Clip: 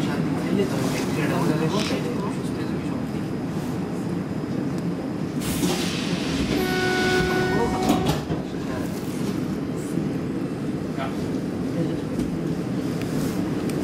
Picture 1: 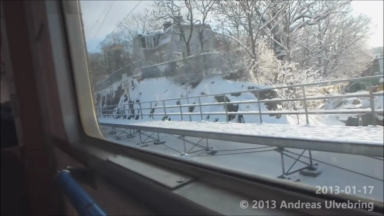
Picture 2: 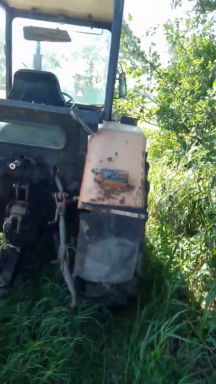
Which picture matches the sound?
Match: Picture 1